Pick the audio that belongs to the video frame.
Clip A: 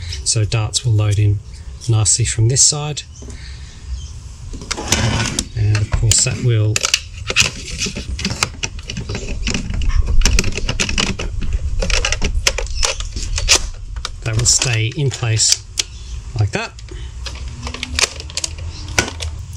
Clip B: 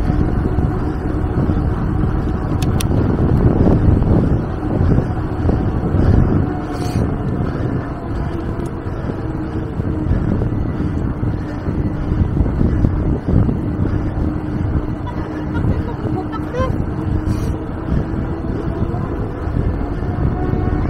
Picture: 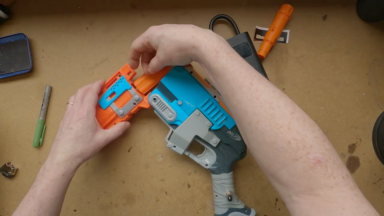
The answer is A